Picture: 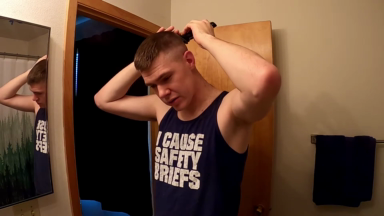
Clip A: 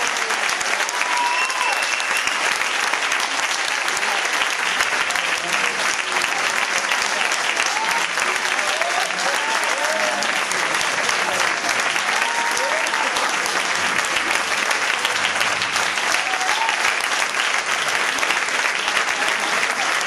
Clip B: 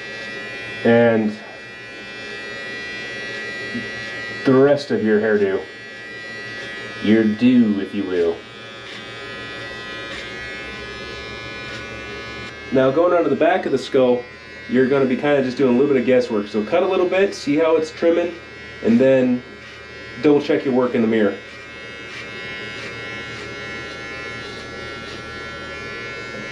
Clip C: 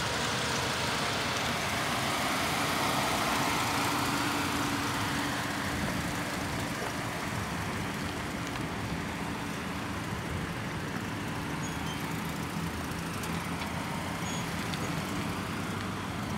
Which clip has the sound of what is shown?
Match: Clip B